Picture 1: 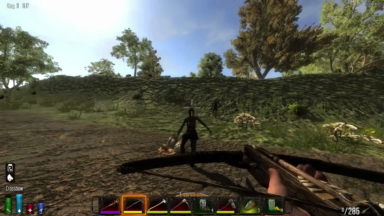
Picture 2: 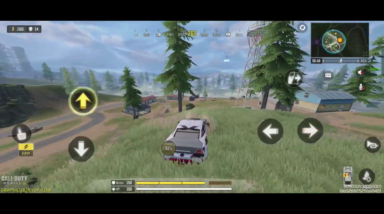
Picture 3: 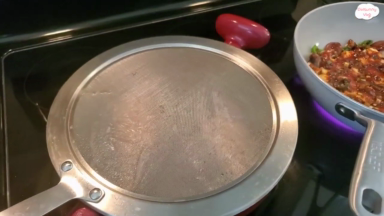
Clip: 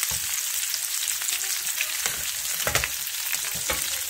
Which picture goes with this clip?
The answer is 3